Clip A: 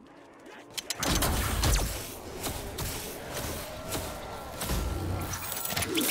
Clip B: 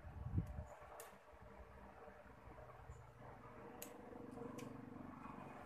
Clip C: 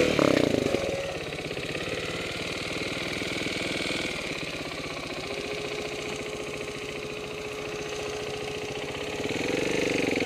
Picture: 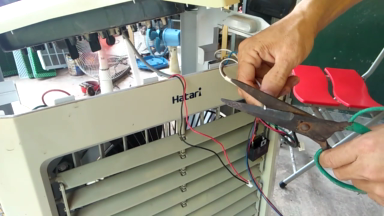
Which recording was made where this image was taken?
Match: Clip B